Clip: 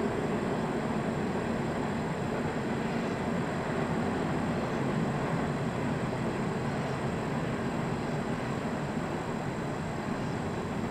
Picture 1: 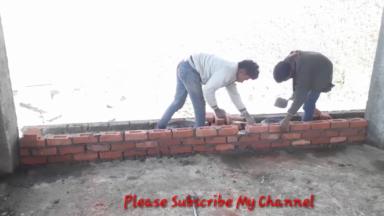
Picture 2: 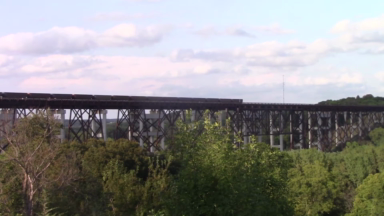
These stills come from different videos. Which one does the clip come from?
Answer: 2